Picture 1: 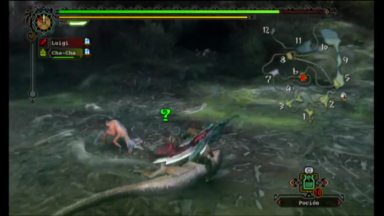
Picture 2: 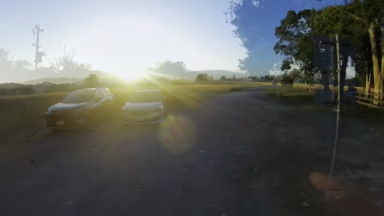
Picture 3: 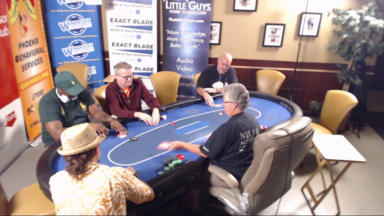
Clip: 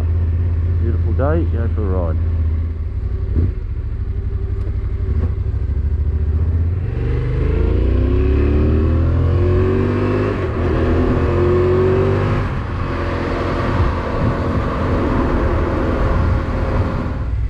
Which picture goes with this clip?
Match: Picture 2